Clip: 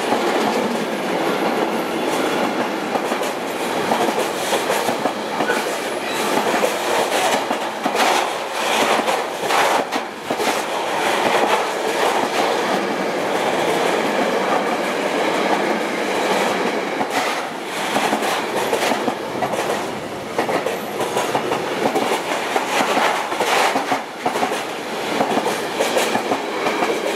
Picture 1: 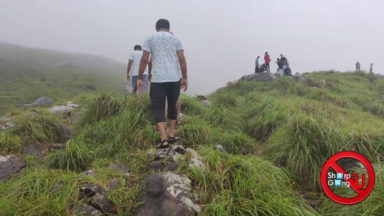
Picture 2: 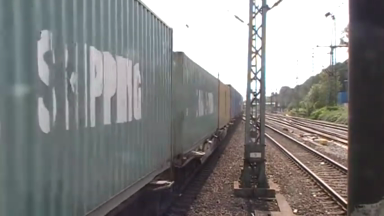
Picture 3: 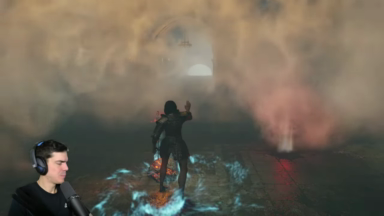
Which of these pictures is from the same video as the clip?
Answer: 2